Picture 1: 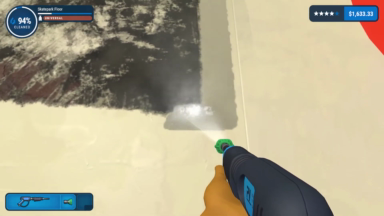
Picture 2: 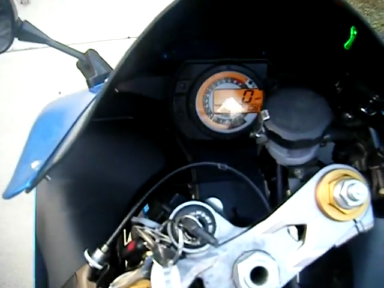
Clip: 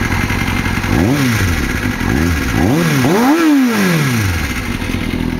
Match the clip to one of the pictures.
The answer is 2